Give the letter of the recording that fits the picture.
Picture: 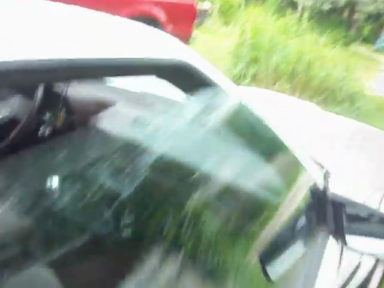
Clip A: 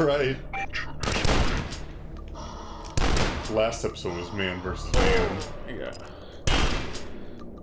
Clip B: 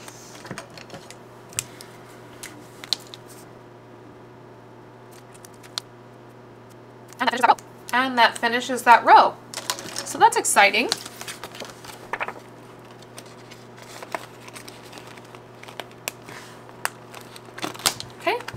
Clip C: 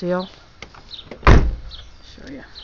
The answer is C